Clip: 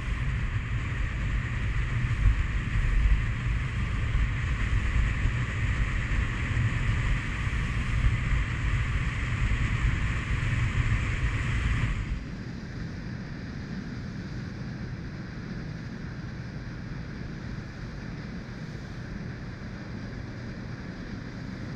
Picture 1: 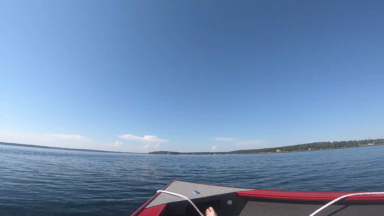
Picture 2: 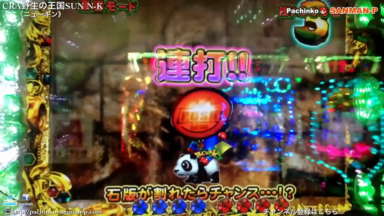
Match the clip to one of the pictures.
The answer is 1